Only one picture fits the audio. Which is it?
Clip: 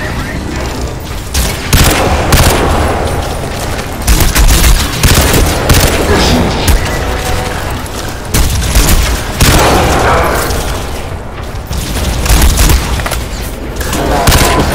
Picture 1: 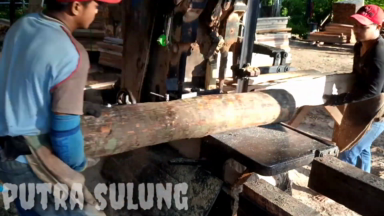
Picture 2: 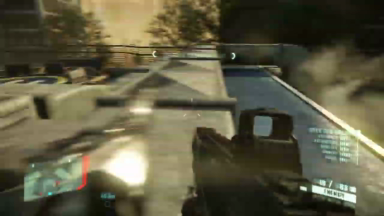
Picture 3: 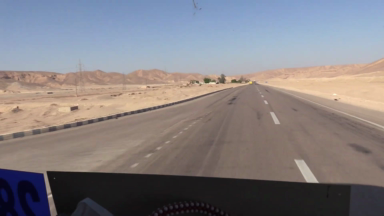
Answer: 2